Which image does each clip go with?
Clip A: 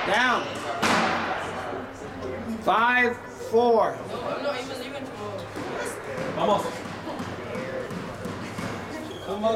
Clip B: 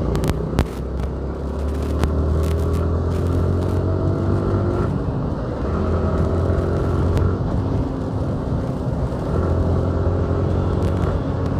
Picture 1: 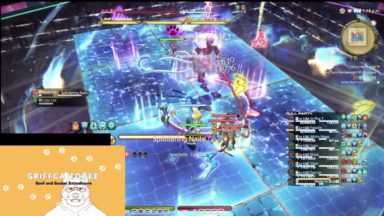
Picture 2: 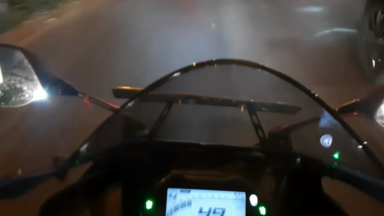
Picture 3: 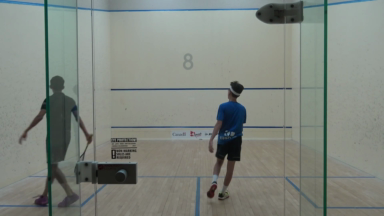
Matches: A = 3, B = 2